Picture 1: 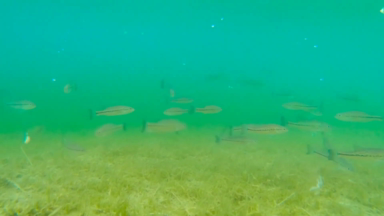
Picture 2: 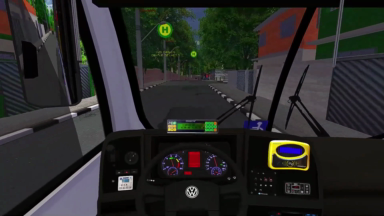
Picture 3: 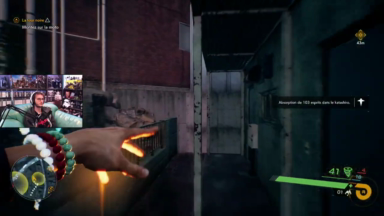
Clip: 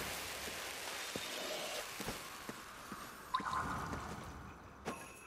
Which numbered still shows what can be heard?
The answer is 3